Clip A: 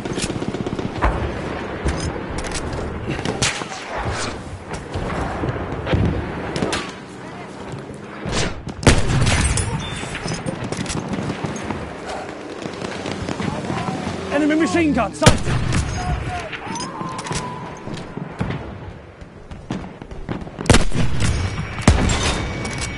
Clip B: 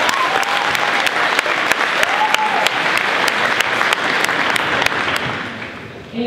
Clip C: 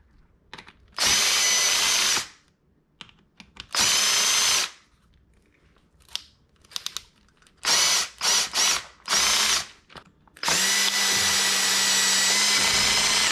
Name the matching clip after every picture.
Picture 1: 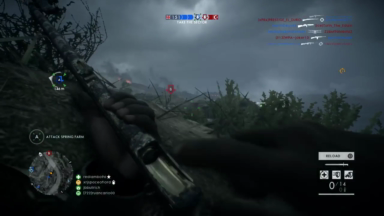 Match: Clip A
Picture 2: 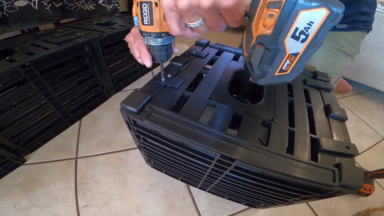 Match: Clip C